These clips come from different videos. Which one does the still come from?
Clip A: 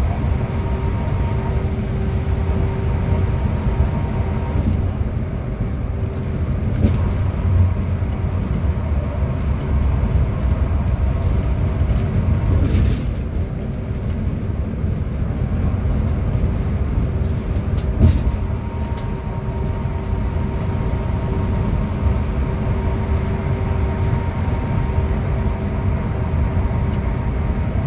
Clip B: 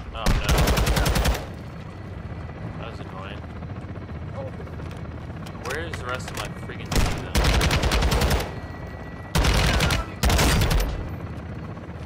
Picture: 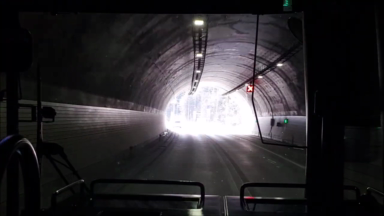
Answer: A